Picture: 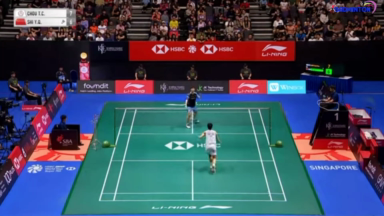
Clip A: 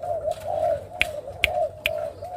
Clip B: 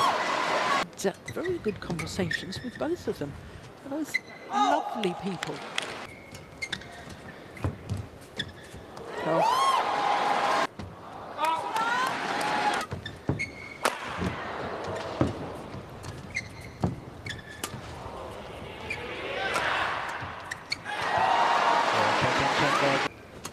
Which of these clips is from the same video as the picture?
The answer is B